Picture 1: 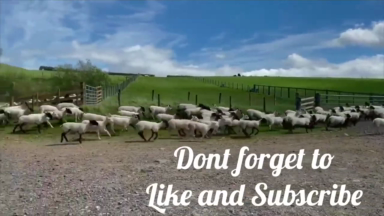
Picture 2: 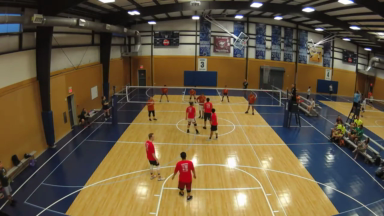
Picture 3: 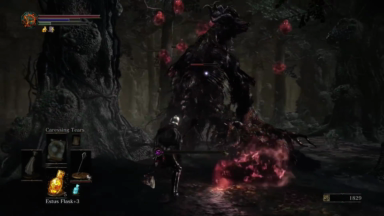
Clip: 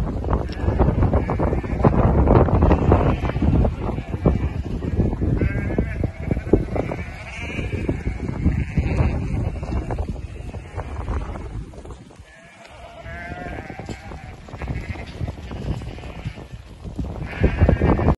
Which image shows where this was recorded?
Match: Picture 1